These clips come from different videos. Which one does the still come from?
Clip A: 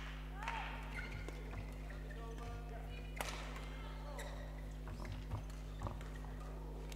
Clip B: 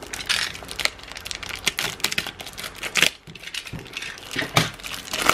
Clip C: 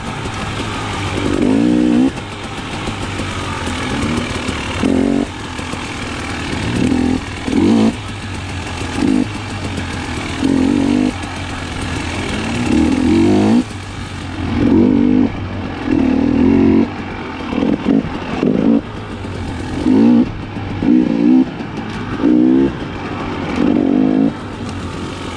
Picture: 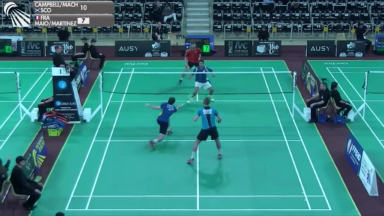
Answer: A